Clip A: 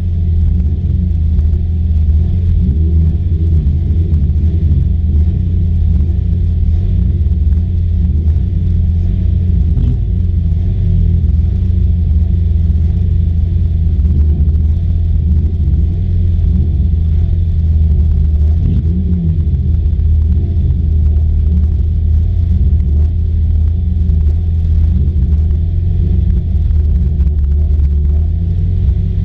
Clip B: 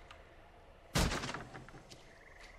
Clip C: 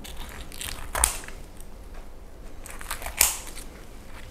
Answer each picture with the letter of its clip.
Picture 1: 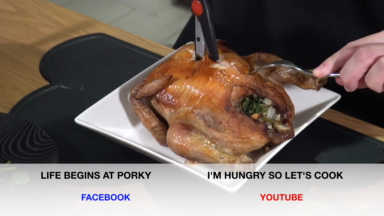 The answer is C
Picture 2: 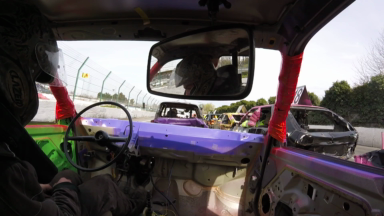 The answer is A